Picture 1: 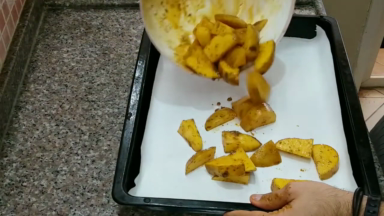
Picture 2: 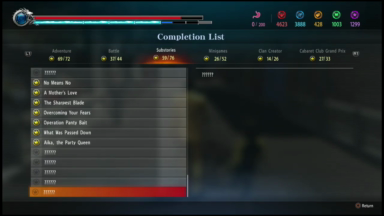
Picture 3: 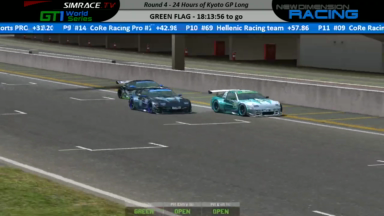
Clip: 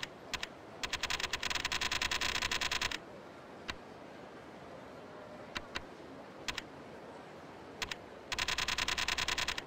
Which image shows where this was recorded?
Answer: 2